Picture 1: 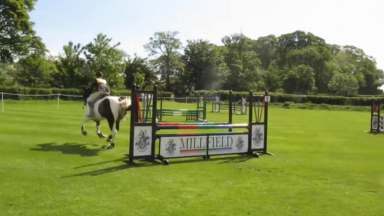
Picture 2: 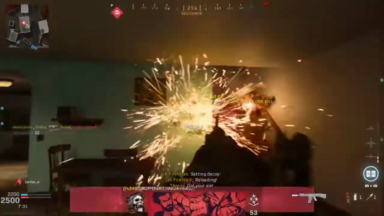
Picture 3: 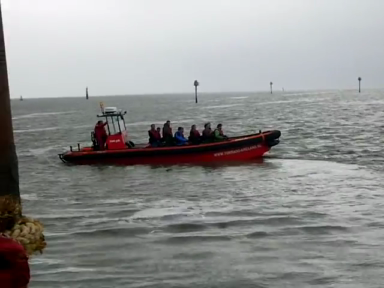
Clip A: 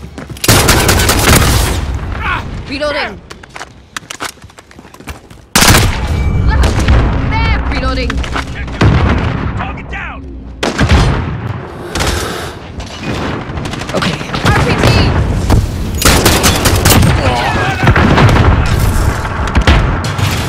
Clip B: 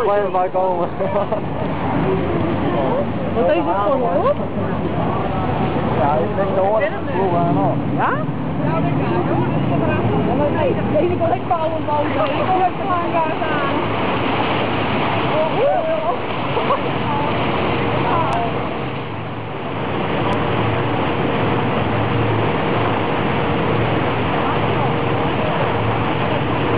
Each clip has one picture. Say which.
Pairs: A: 2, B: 3